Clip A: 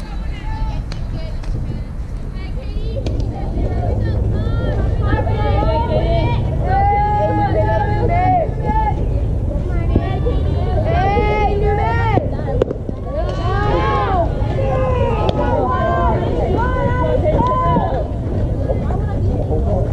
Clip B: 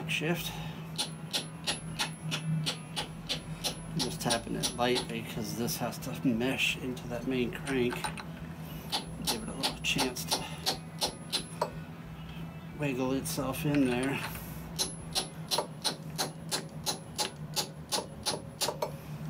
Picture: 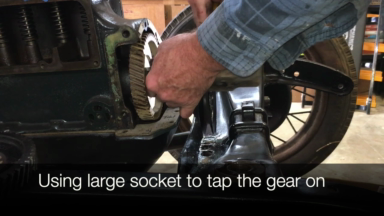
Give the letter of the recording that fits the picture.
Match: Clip B